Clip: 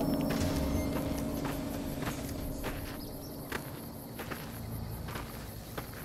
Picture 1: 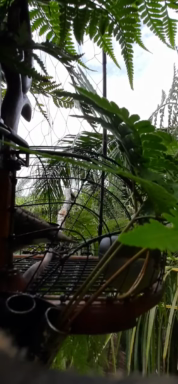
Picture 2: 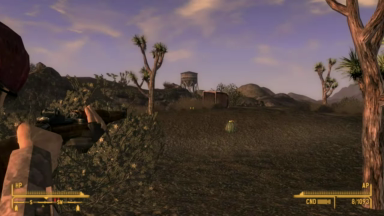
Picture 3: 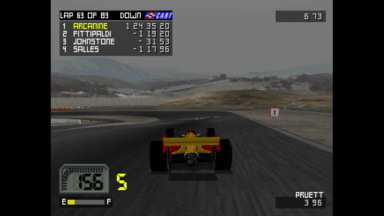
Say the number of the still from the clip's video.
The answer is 2